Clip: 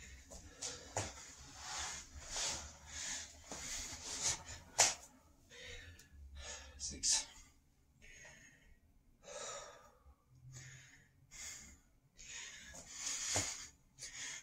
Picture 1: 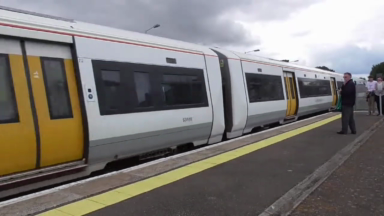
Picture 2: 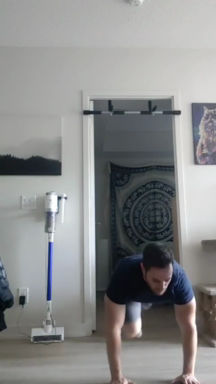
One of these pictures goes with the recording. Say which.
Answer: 2